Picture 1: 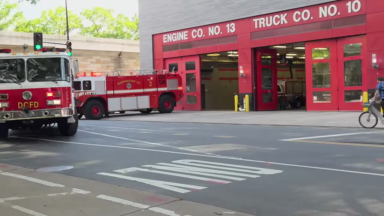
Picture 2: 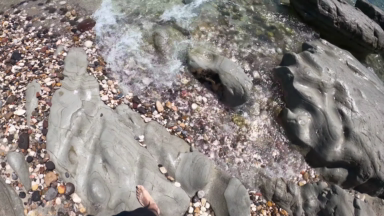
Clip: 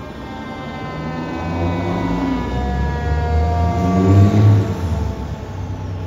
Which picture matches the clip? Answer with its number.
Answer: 1